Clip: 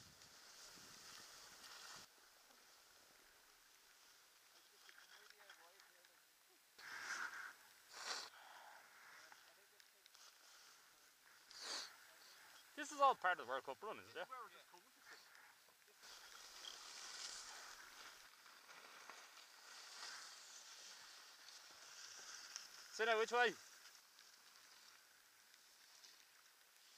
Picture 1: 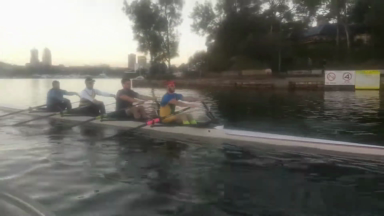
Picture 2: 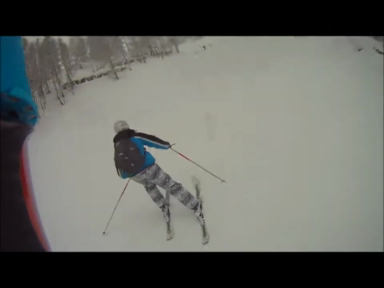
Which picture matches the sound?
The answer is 2